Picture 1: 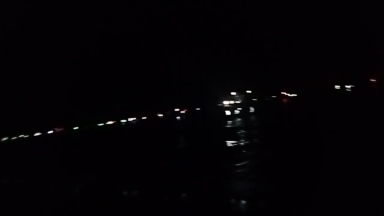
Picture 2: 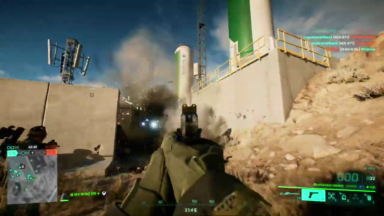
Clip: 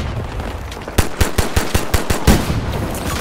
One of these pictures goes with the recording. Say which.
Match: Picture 2